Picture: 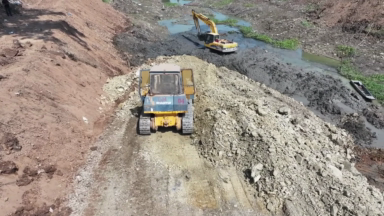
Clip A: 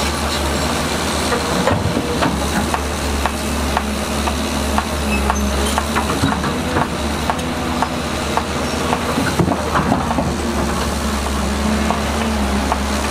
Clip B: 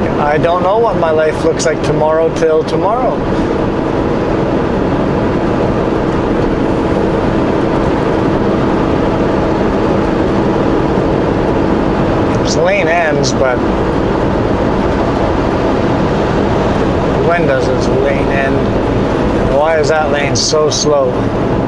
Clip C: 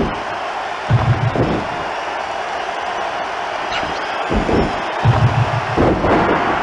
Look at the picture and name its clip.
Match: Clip A